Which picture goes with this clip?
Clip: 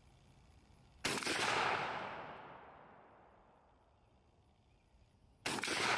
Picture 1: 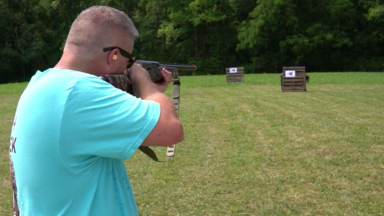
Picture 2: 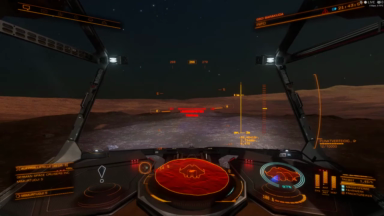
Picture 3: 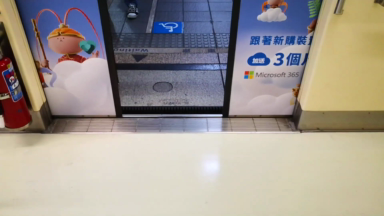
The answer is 1